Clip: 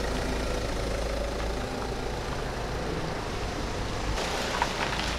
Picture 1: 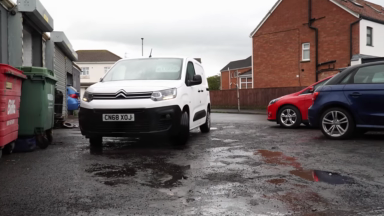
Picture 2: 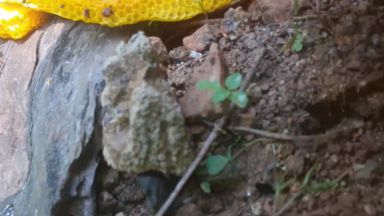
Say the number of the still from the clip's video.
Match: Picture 1